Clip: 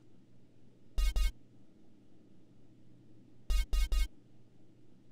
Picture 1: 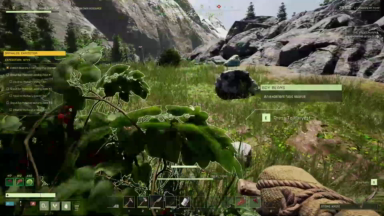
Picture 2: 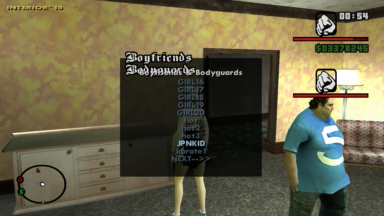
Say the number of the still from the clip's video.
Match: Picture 2